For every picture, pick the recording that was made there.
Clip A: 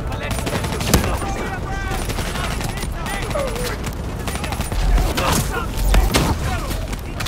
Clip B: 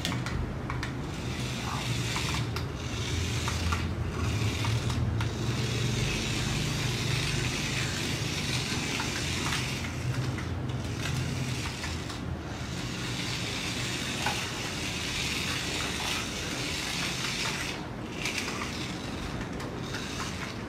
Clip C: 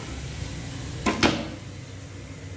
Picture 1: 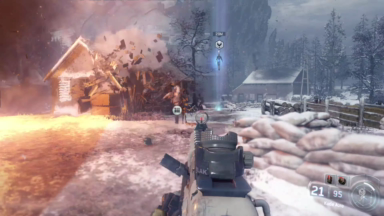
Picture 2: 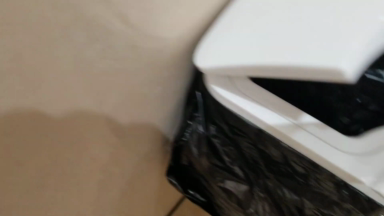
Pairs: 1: A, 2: C